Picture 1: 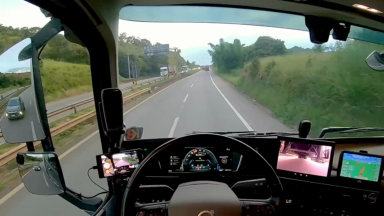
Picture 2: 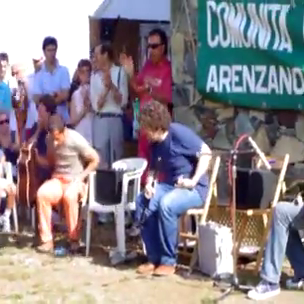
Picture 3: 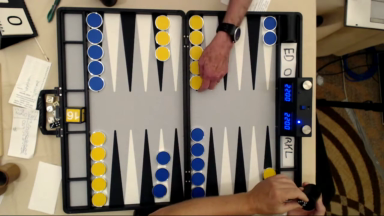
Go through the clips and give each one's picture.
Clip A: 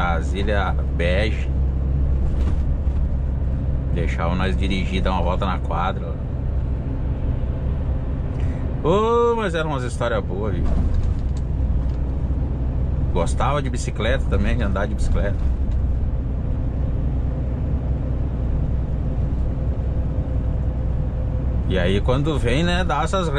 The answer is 1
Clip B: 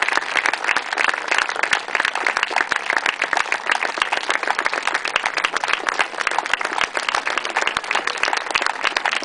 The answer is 2